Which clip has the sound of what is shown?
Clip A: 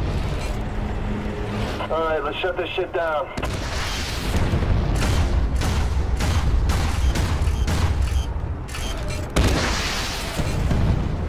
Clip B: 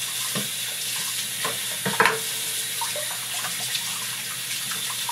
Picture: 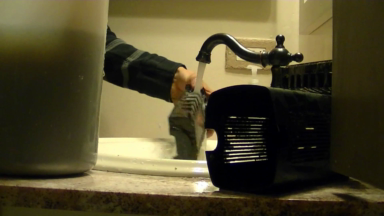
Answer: B